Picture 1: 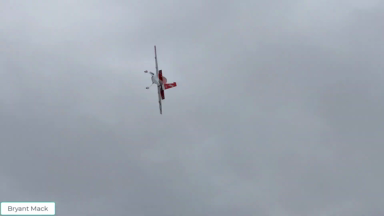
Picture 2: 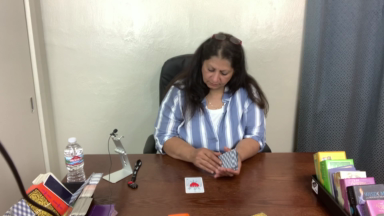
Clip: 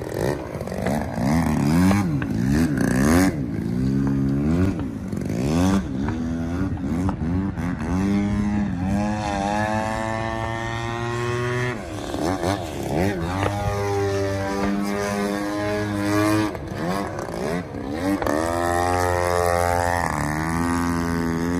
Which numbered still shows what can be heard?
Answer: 1